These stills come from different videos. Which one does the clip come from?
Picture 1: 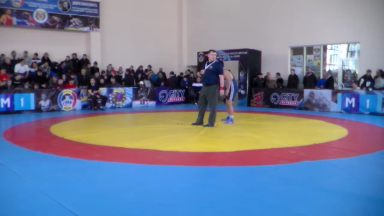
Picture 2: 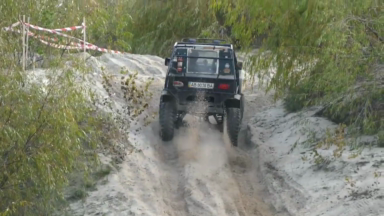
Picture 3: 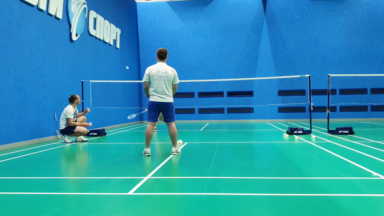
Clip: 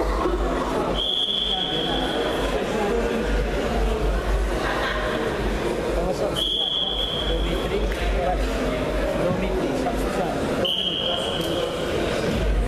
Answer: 1